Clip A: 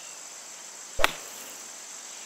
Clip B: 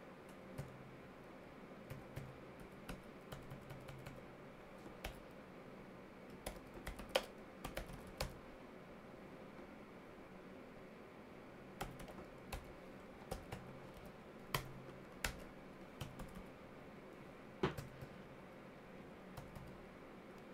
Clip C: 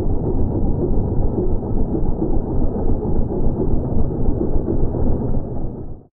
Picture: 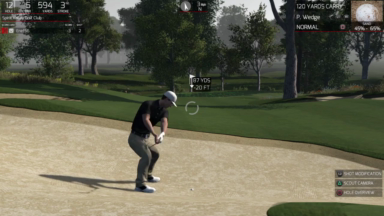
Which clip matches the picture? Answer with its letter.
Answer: A